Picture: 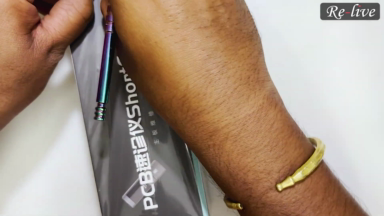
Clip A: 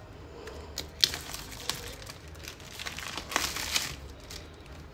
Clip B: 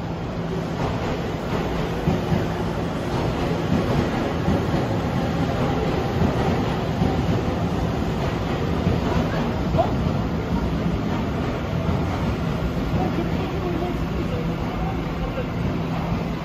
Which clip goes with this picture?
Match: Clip A